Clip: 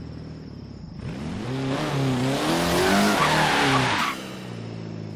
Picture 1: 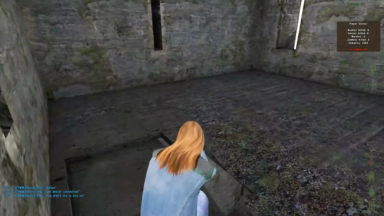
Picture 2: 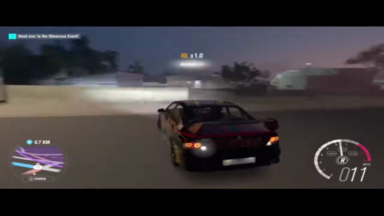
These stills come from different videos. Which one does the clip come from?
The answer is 2